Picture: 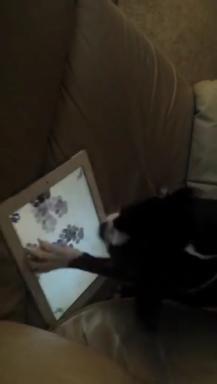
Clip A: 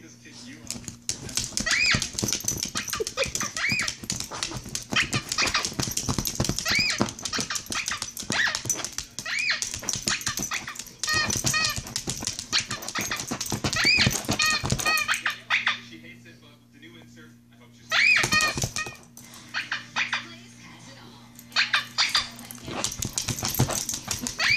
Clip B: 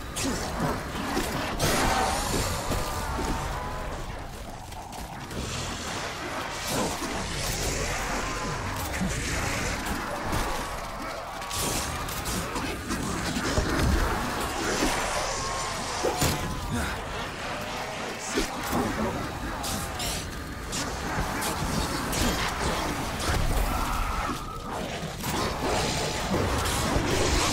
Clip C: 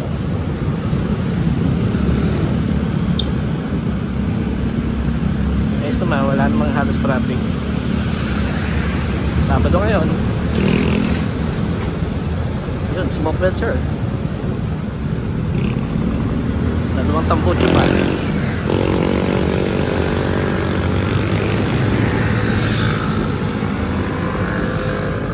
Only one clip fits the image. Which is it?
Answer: A